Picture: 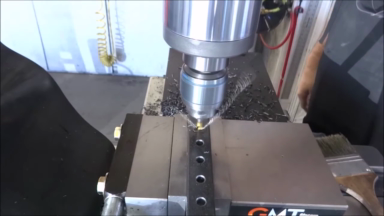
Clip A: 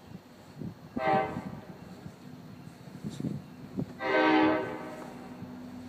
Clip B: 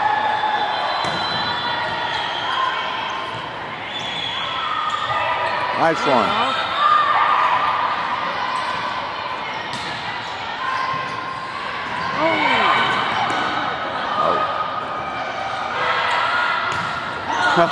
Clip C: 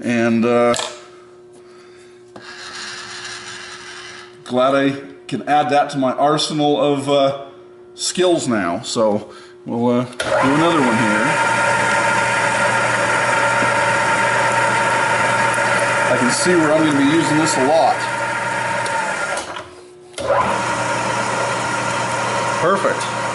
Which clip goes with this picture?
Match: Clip C